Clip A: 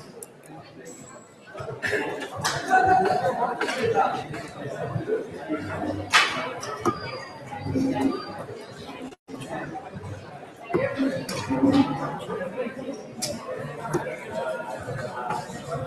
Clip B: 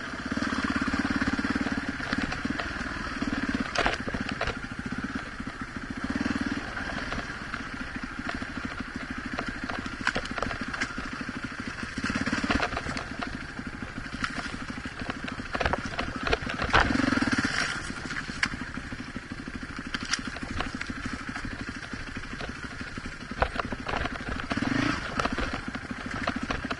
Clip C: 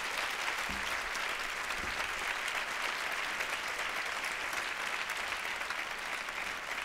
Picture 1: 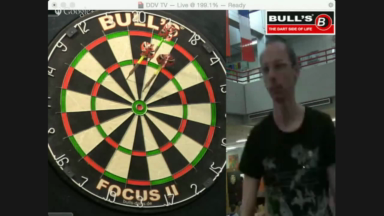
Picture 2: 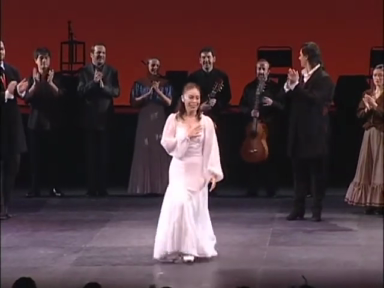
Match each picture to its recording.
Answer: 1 A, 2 C